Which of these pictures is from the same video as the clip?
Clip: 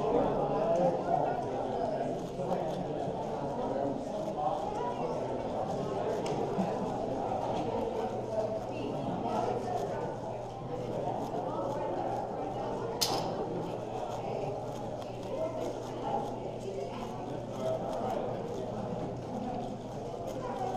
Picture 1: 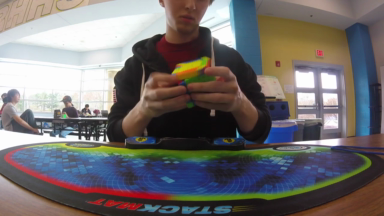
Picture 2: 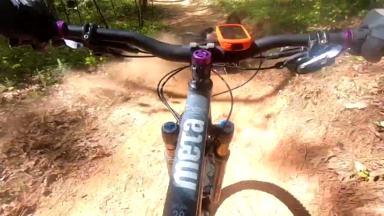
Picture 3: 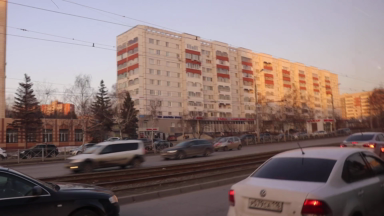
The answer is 1